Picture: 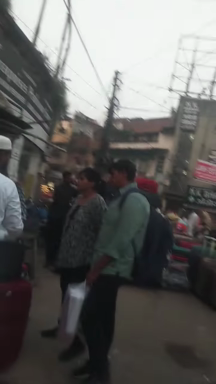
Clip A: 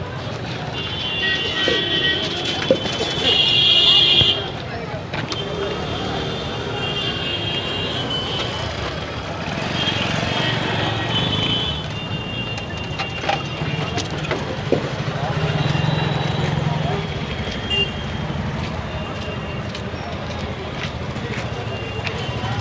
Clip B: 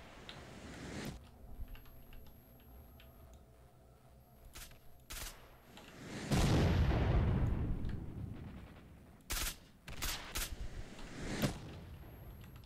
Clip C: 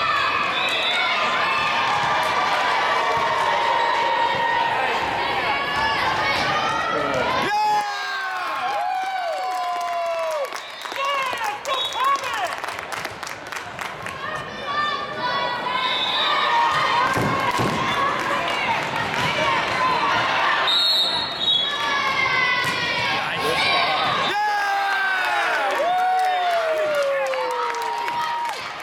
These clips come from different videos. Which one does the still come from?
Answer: A